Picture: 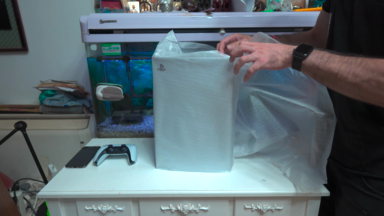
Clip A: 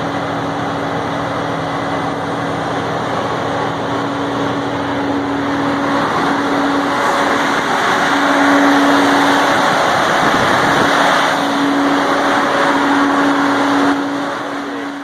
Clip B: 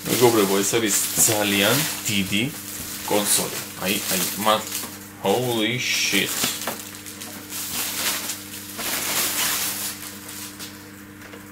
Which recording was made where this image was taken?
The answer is B